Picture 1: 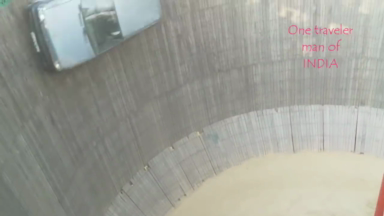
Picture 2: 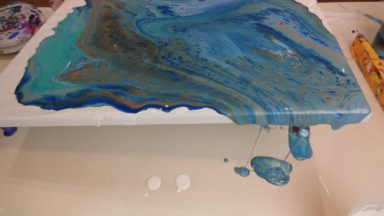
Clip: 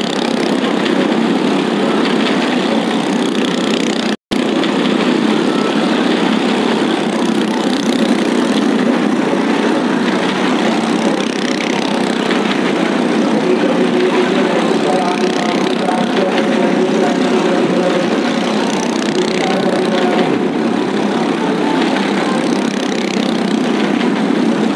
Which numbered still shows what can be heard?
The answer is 1